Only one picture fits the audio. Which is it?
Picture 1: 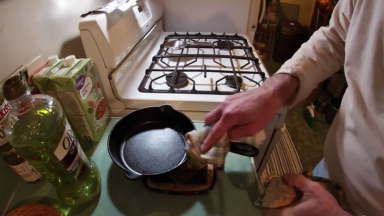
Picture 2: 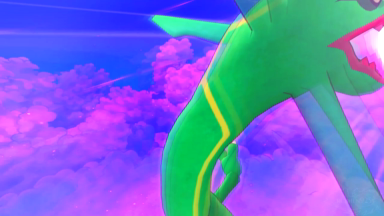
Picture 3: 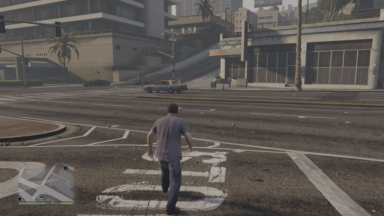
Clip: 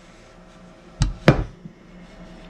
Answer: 1